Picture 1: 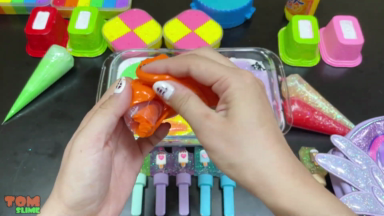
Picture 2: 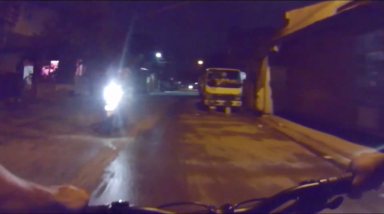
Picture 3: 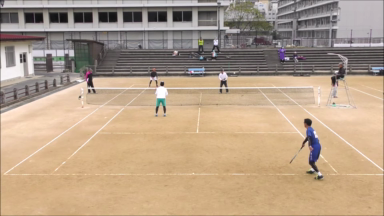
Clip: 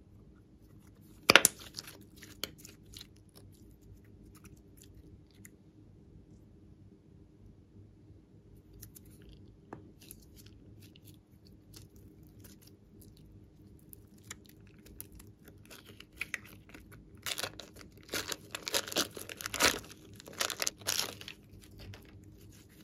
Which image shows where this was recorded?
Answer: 1